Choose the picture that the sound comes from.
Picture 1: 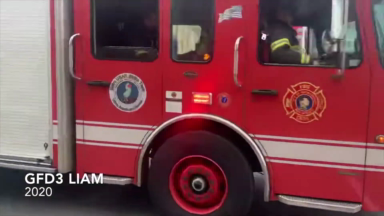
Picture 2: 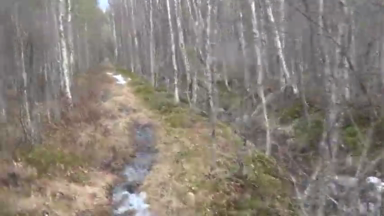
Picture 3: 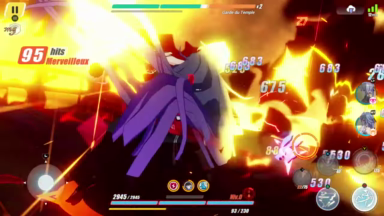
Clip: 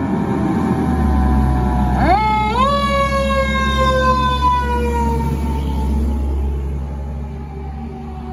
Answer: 1